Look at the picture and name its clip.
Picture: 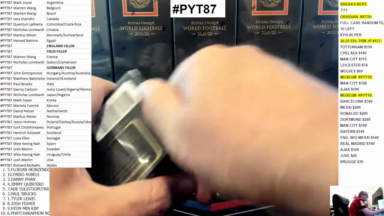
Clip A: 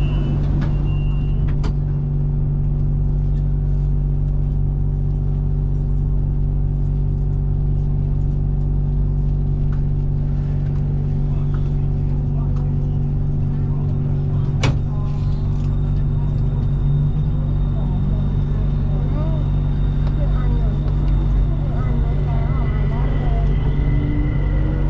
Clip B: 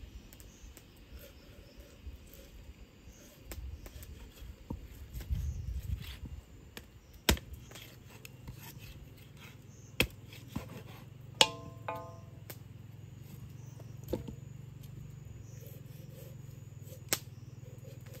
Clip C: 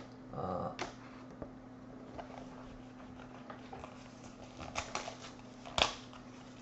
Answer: C